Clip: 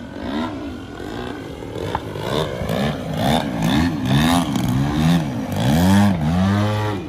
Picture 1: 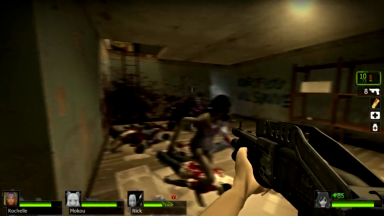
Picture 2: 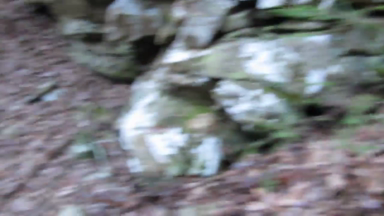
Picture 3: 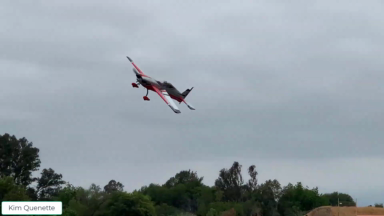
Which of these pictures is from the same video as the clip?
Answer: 3